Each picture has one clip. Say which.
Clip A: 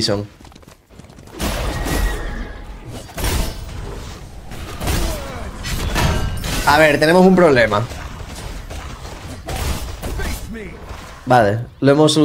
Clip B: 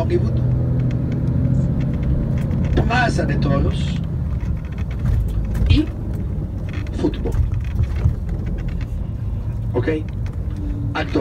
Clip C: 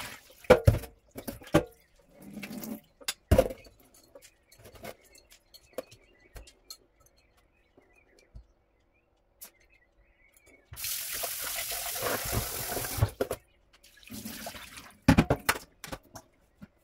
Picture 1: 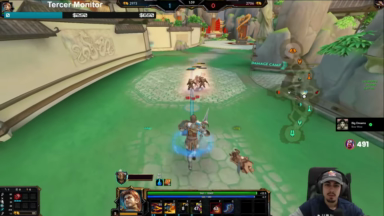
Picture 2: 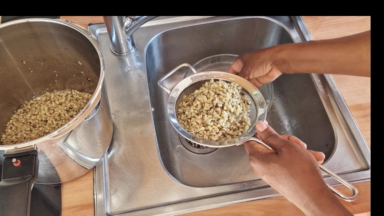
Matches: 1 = A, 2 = C